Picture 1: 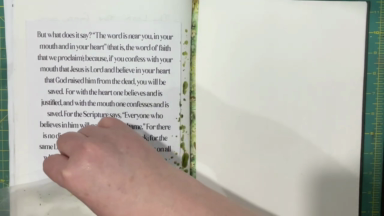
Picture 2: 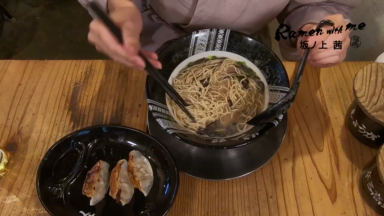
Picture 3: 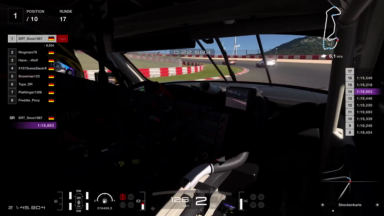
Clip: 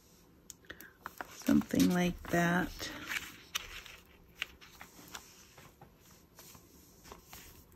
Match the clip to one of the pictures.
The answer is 1